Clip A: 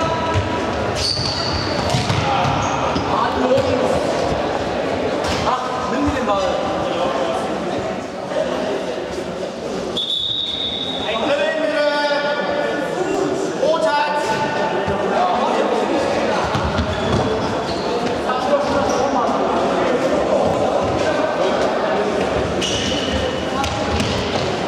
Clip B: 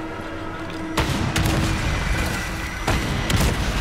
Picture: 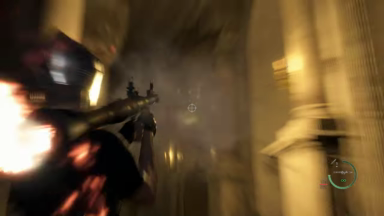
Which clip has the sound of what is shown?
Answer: B